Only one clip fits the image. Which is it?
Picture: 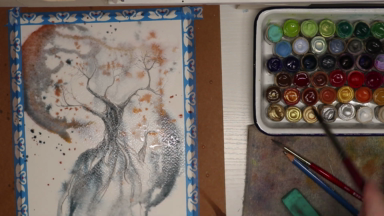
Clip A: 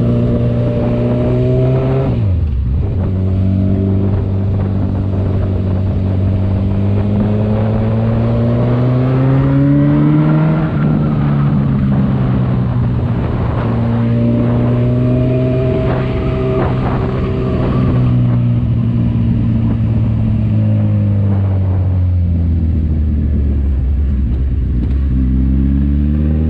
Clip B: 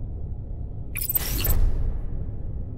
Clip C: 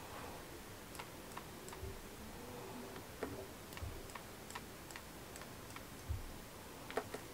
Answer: C